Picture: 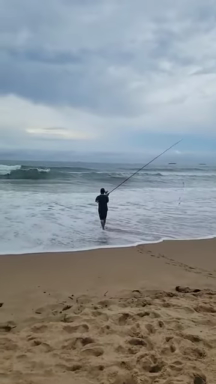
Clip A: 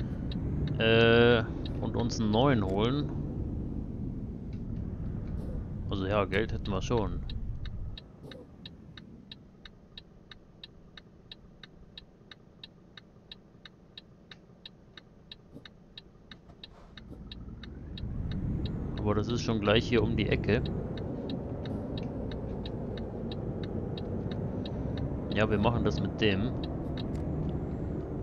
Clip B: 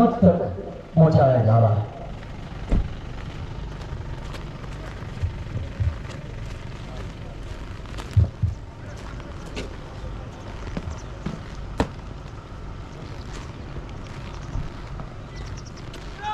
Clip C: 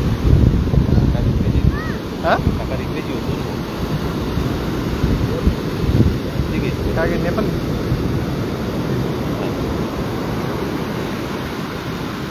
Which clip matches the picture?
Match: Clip C